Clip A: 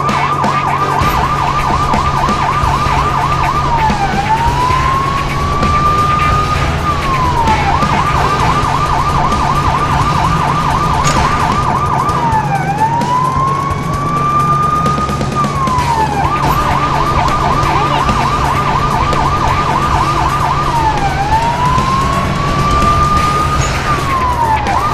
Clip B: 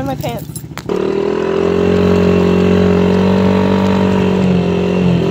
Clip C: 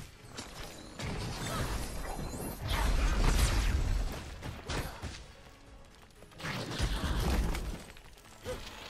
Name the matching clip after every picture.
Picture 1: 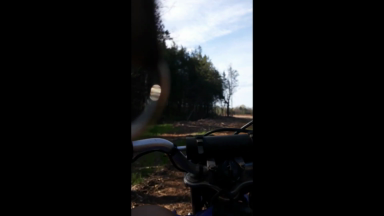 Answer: B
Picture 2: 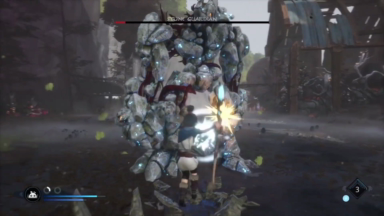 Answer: C